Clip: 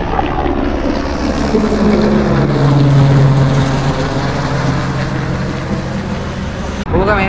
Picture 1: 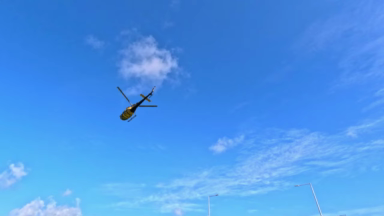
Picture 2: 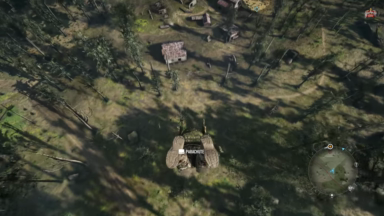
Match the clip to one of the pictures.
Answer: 1